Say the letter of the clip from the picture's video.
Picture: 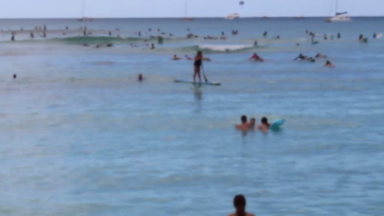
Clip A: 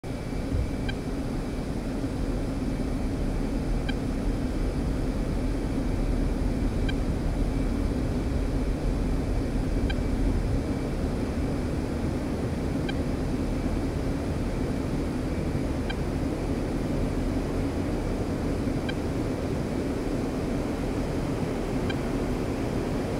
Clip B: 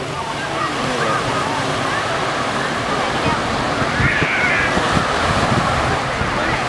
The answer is B